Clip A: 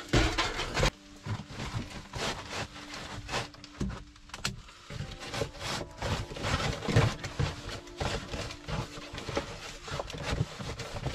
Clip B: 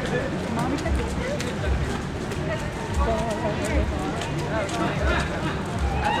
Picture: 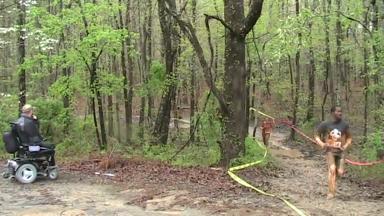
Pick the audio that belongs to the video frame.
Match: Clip B